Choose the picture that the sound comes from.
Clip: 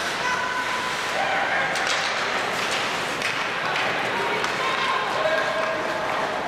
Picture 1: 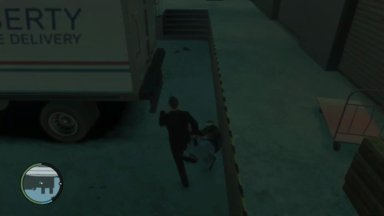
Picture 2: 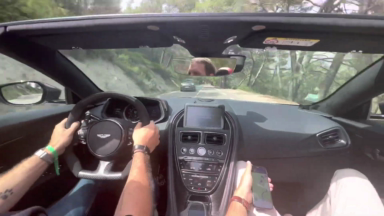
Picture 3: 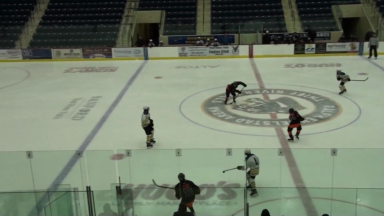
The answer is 3